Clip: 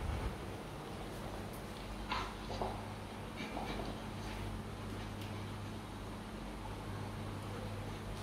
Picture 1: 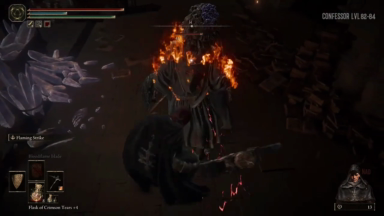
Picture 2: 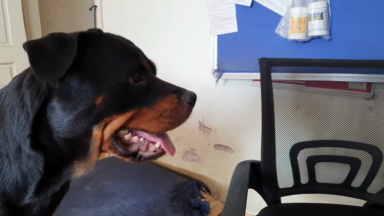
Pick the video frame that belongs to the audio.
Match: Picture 2